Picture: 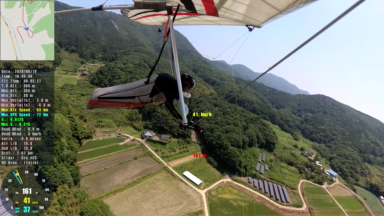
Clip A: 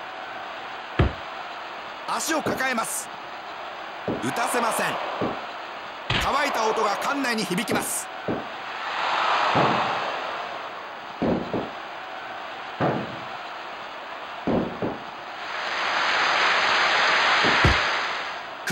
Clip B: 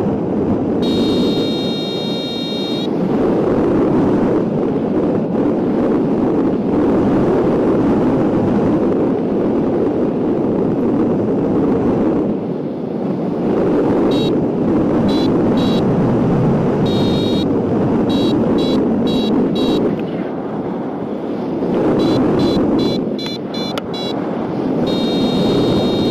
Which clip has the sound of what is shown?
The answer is B